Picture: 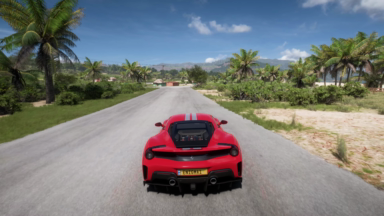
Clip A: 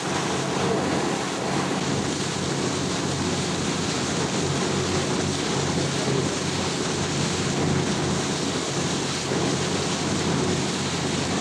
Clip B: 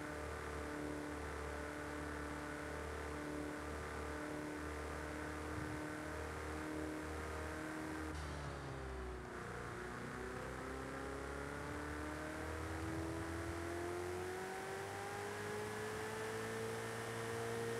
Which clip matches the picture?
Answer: B